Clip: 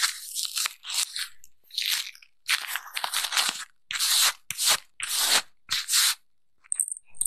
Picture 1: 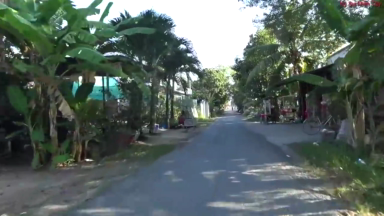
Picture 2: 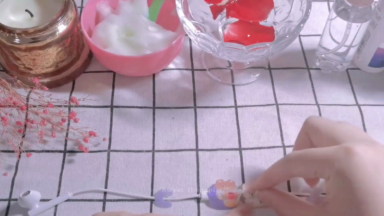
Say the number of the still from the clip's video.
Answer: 2